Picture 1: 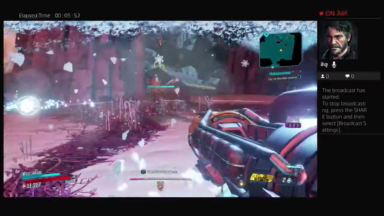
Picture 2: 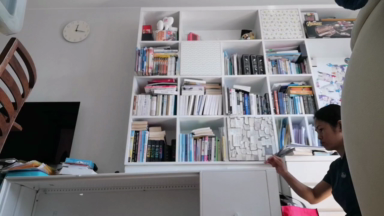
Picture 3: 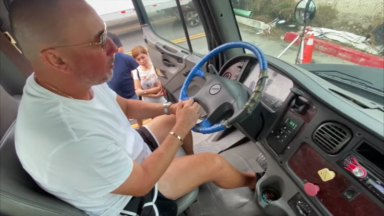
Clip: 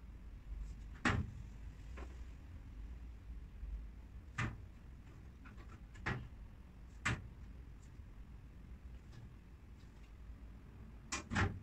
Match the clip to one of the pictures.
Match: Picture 2